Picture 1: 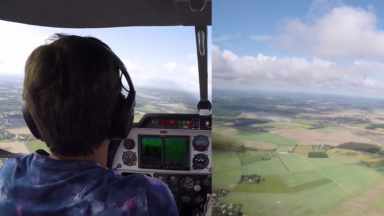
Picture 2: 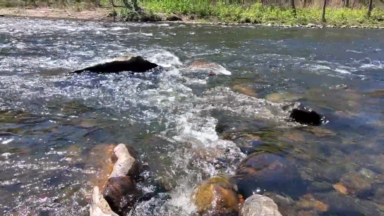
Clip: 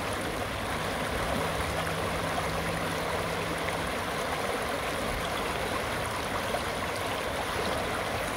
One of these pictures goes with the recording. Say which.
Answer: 2